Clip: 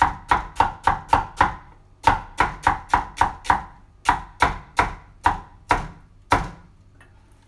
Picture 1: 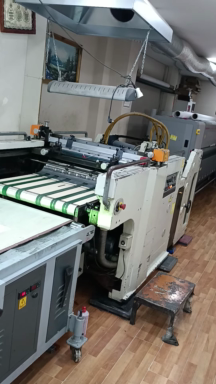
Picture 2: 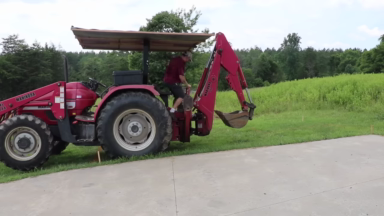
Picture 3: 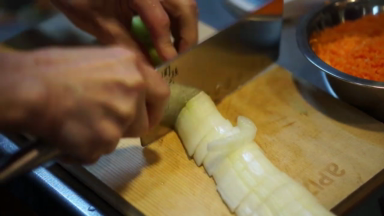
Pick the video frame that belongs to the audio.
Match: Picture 3